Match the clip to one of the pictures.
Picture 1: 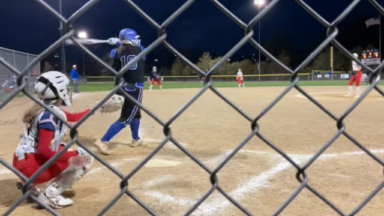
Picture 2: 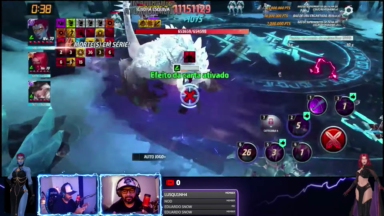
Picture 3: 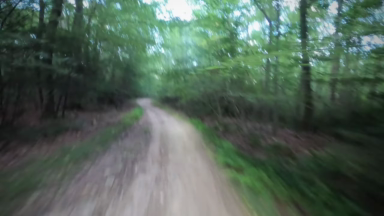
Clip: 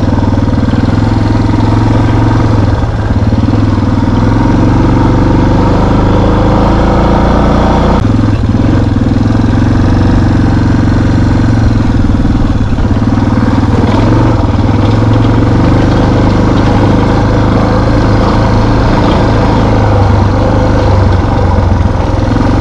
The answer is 3